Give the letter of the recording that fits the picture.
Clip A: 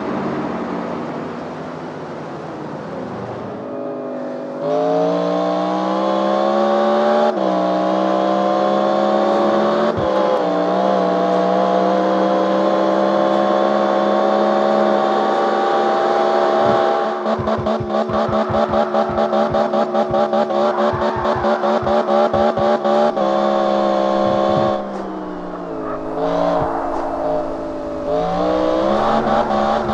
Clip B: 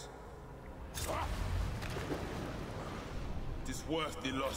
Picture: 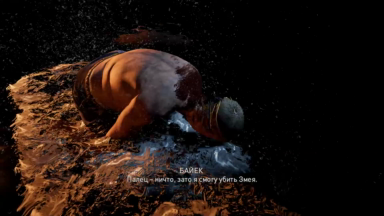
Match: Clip B